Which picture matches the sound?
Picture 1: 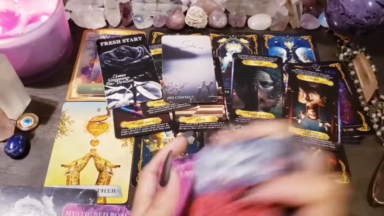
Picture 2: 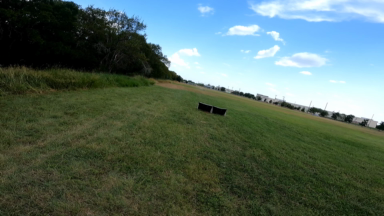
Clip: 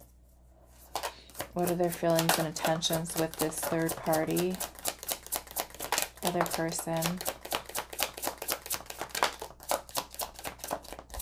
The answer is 1